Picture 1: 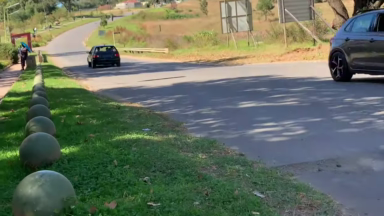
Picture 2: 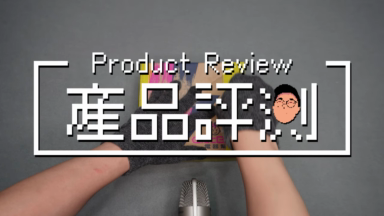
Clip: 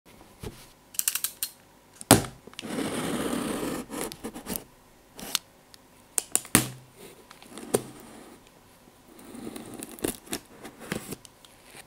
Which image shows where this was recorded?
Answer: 2